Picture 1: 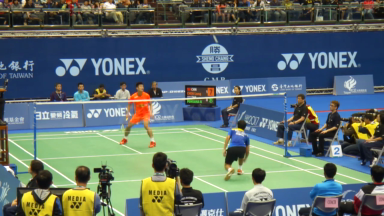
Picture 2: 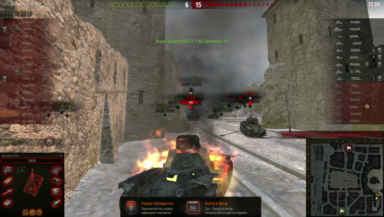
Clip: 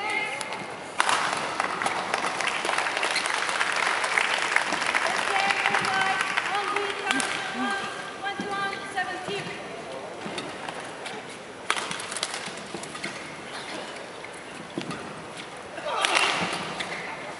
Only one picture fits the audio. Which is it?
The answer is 1